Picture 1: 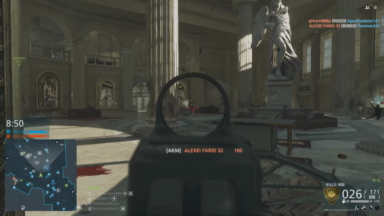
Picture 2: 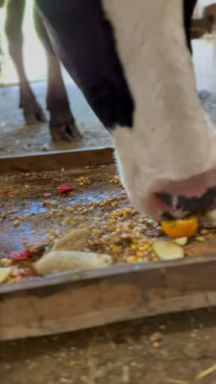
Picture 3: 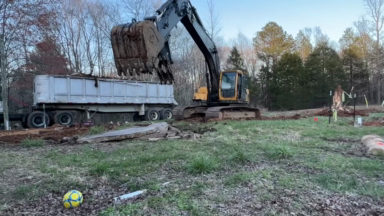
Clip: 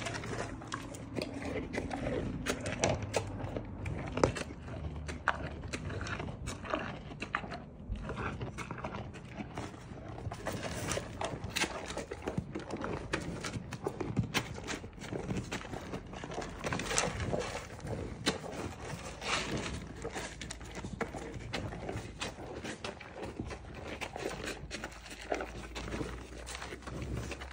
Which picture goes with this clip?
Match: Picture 2